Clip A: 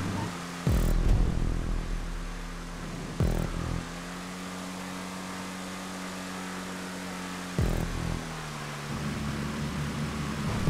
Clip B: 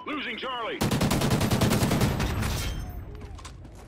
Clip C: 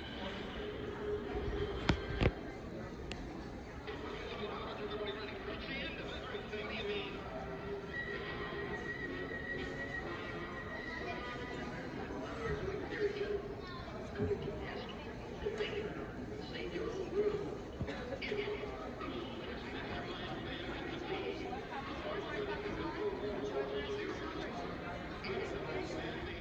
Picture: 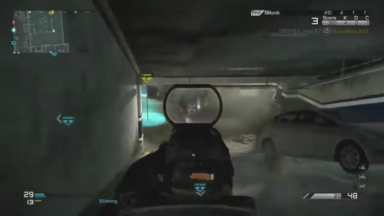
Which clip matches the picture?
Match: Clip B